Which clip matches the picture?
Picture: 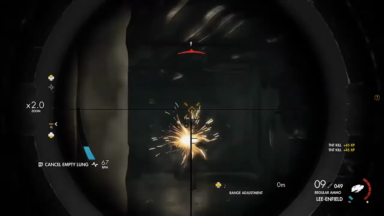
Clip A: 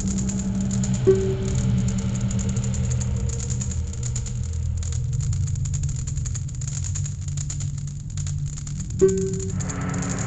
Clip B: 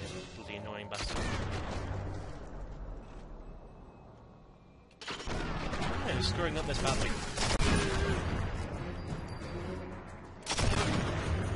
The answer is B